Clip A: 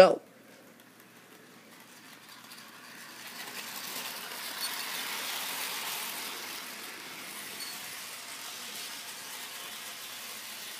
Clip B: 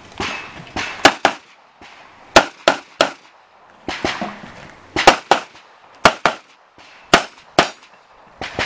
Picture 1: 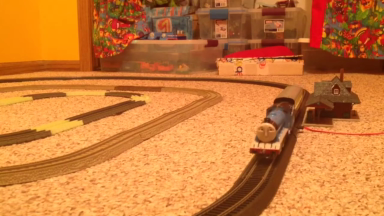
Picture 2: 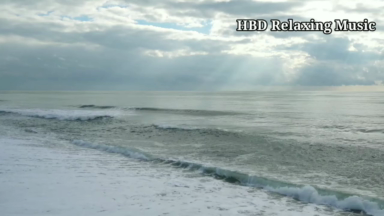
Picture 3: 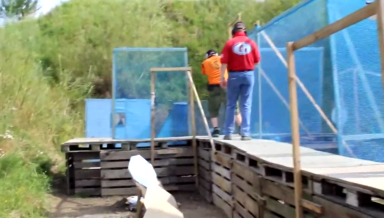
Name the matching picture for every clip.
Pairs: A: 1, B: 3